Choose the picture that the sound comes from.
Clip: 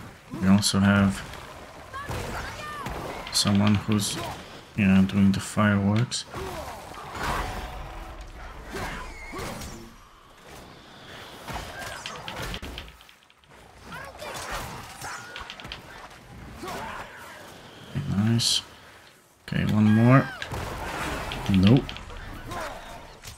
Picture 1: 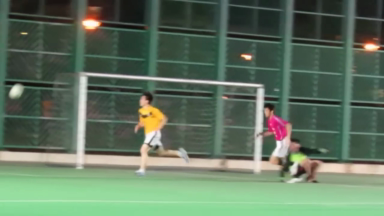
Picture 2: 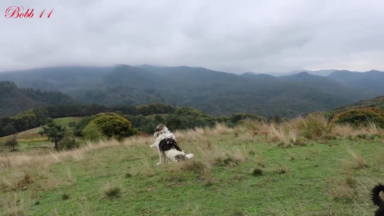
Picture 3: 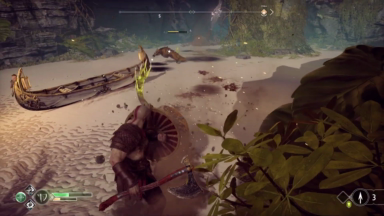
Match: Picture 3